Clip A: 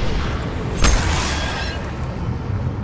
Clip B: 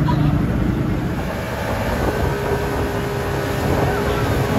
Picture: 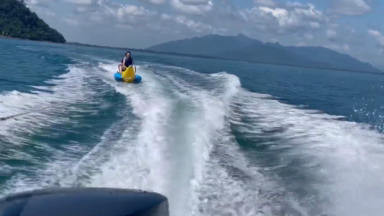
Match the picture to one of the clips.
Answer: B